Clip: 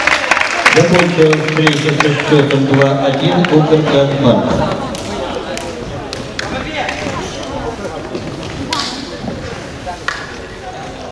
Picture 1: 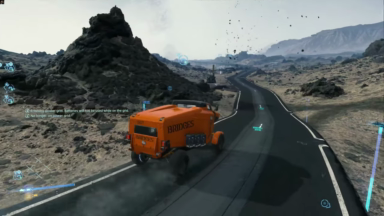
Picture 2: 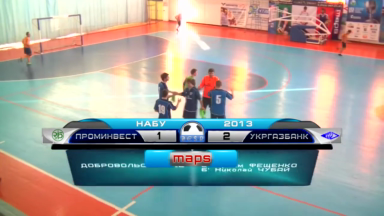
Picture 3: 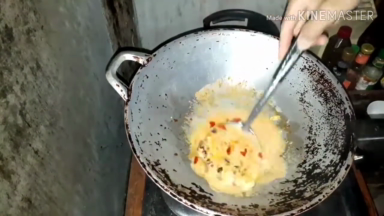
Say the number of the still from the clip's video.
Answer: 2